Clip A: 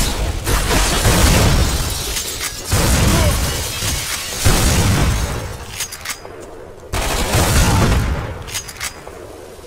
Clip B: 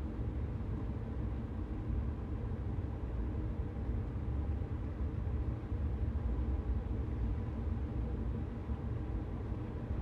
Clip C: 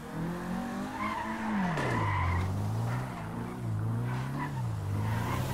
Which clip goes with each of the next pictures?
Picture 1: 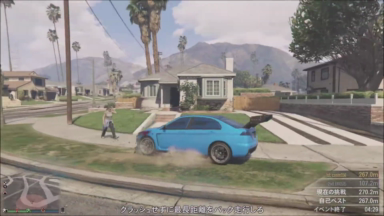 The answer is C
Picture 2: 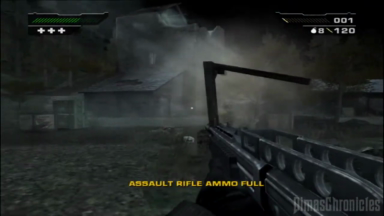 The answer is A